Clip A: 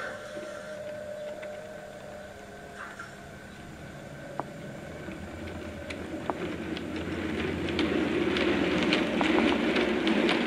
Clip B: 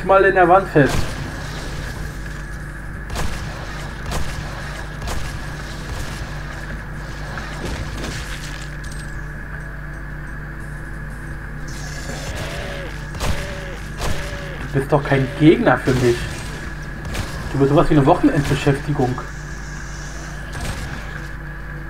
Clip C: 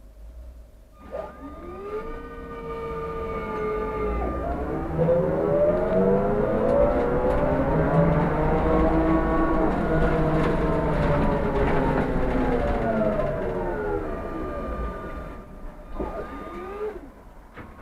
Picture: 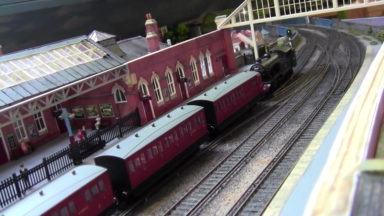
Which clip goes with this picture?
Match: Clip A